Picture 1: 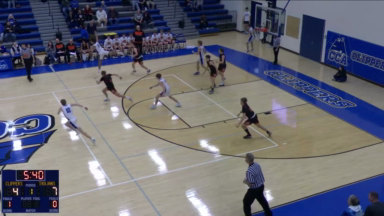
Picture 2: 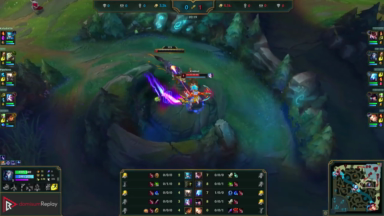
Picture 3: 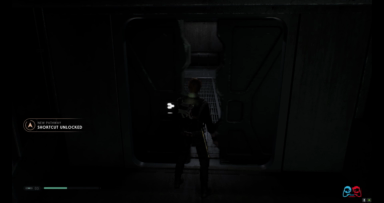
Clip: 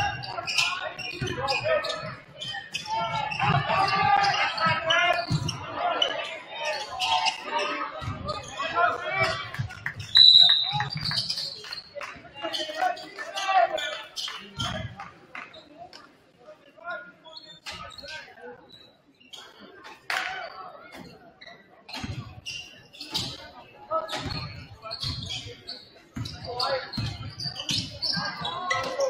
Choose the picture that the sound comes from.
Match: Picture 1